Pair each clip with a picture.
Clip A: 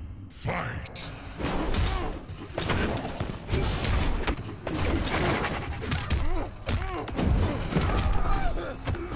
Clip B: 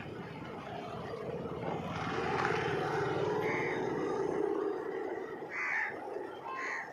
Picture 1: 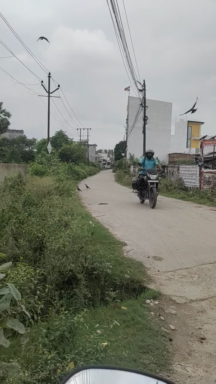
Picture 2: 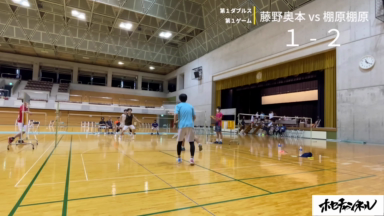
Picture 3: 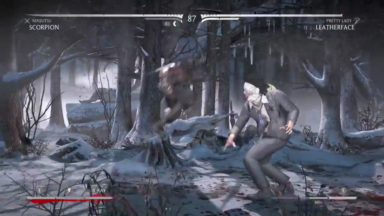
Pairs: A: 3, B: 1